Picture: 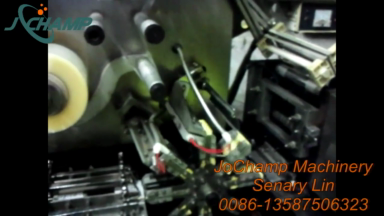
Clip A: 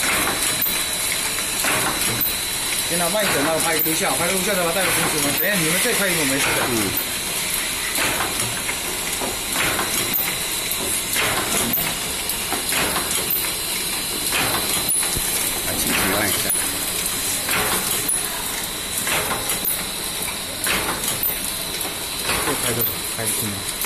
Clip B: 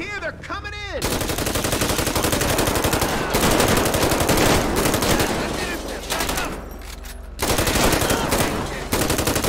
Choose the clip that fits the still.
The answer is A